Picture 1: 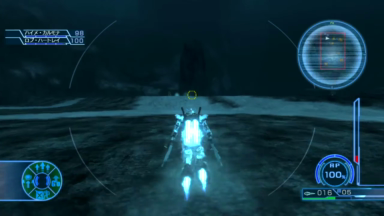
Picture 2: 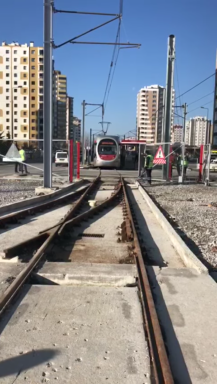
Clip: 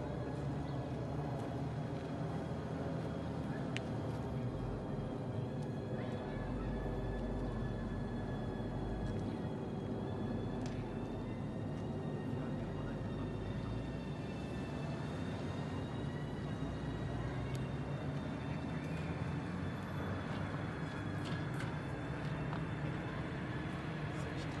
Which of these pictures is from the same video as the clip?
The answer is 2